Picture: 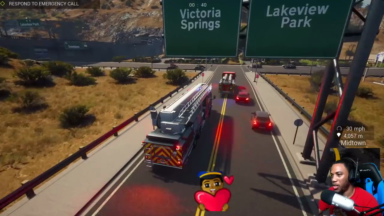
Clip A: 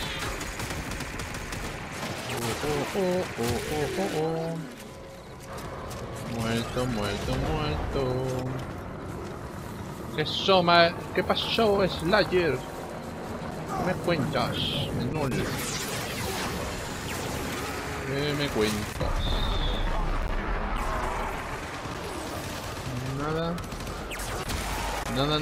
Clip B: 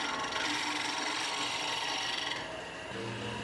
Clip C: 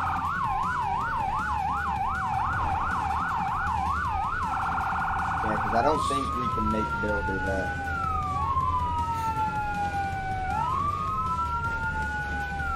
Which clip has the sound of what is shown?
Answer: C